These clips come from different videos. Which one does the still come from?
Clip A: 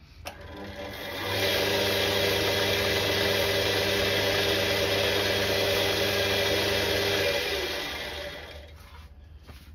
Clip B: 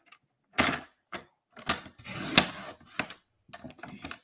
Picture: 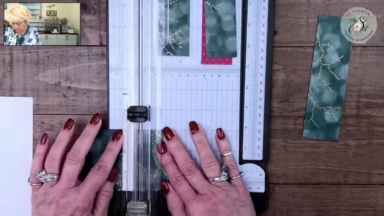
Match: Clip B